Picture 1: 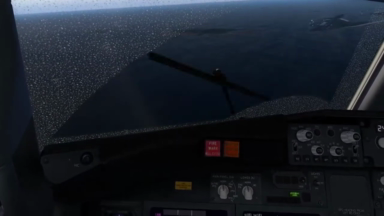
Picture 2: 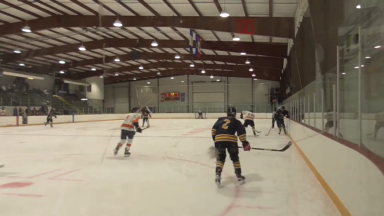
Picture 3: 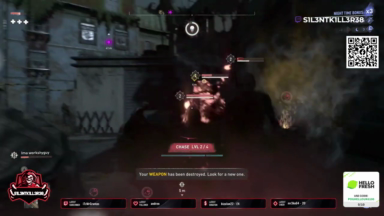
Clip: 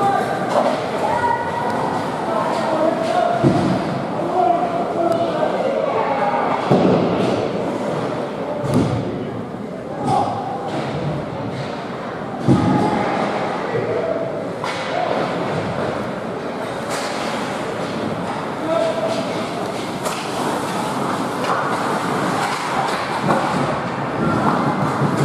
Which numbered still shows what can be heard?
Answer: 2